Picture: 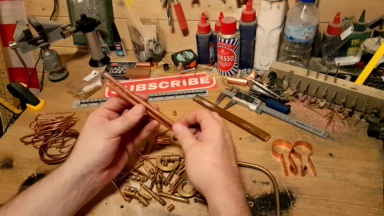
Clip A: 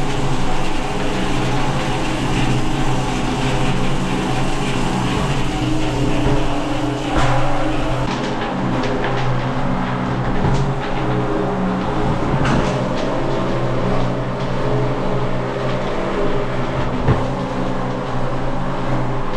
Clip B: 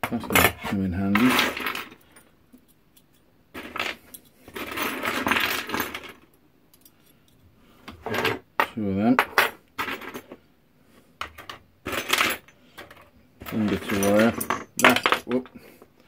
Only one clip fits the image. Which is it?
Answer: B